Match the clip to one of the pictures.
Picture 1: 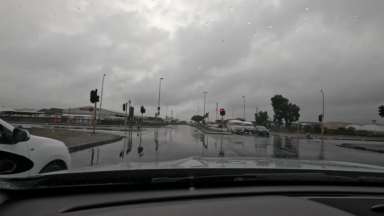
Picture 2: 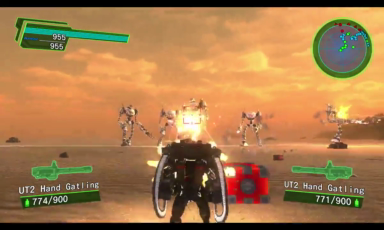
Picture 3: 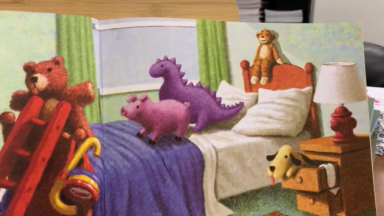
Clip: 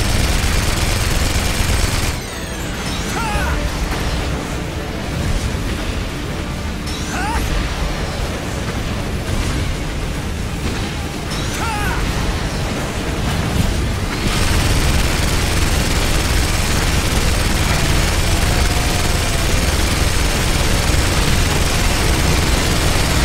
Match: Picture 2